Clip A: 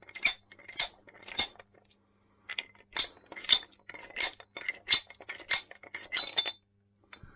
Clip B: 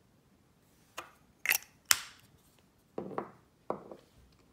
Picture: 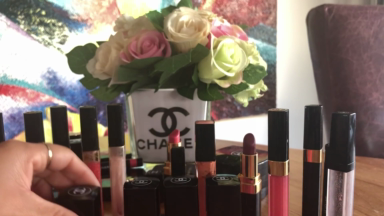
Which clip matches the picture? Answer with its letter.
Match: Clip B